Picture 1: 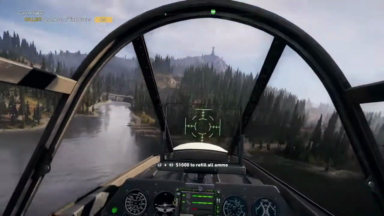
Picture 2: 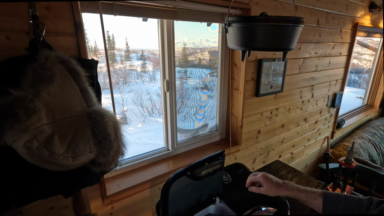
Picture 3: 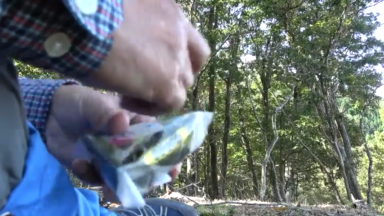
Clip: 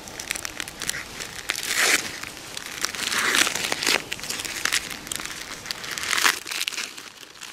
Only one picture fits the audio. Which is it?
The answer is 3